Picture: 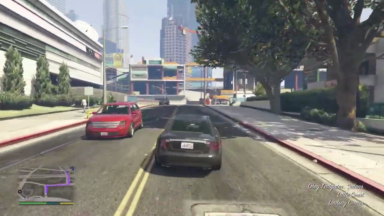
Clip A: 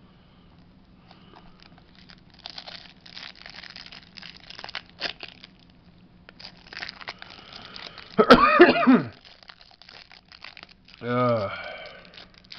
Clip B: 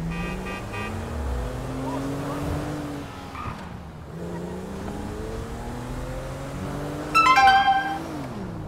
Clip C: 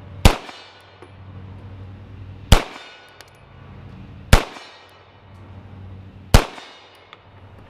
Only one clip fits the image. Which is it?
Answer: B